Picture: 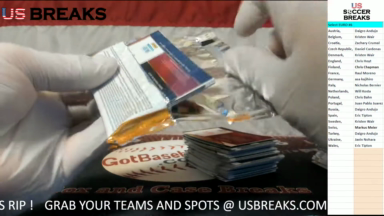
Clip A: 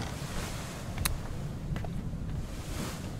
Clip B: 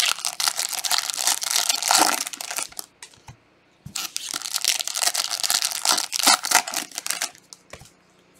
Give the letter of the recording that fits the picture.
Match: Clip B